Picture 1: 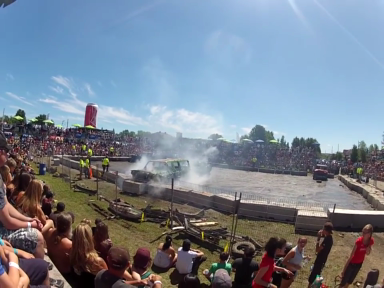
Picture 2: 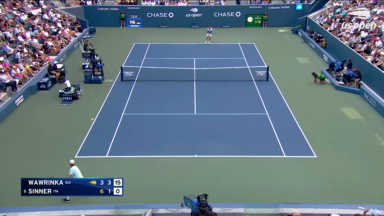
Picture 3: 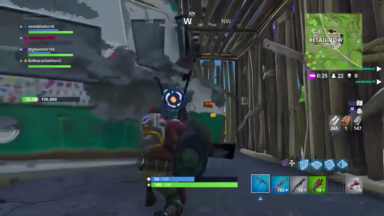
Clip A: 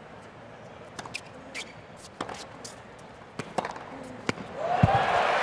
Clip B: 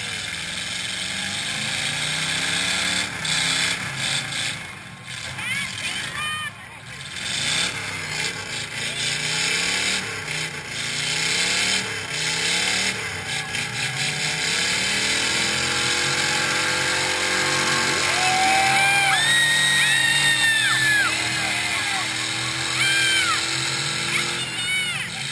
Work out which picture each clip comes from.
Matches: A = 2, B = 1